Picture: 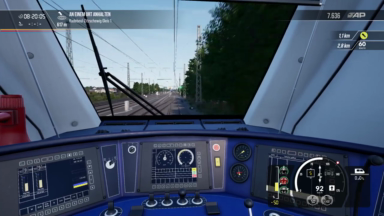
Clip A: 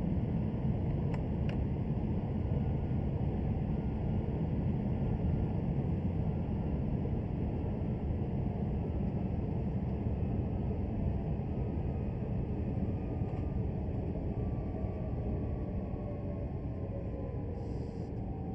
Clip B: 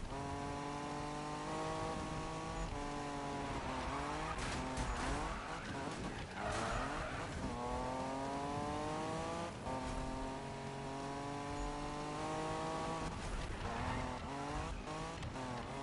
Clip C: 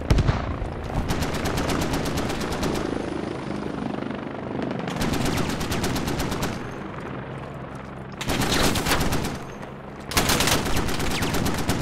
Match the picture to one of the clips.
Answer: A